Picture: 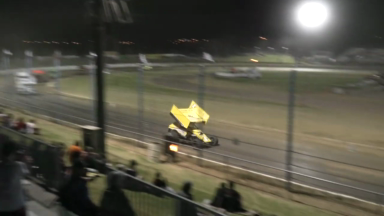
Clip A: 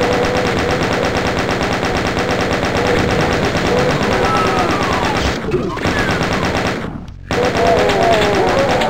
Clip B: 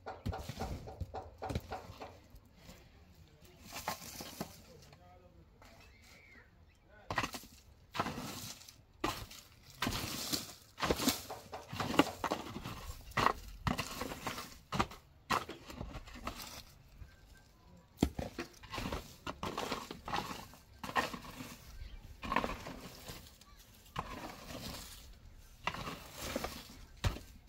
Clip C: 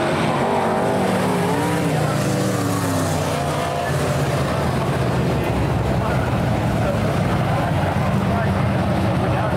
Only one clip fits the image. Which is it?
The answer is C